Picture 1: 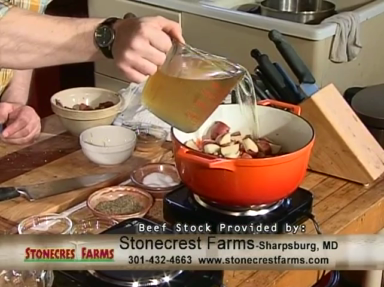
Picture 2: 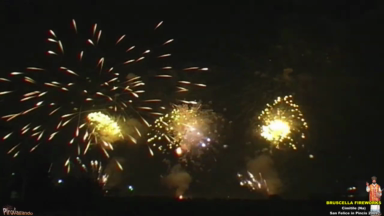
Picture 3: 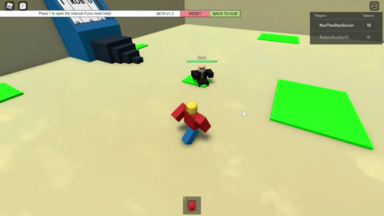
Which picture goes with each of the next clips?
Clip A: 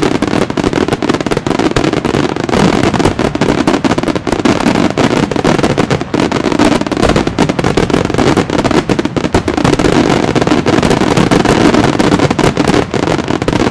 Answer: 2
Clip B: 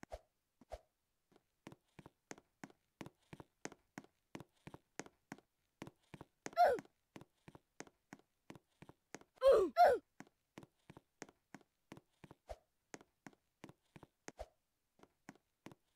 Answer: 3